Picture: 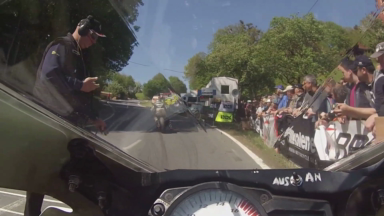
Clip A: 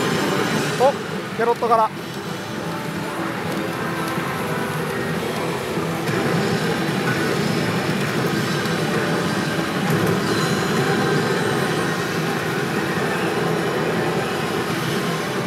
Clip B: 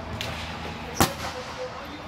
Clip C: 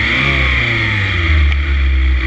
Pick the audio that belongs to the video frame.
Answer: C